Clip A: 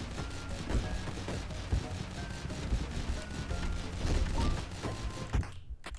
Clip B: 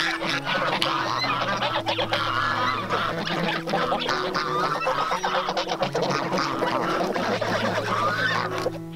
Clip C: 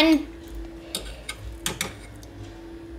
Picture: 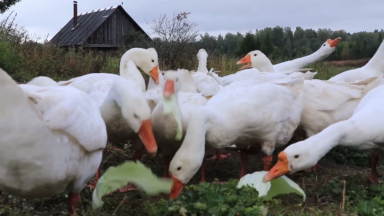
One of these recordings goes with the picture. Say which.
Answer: B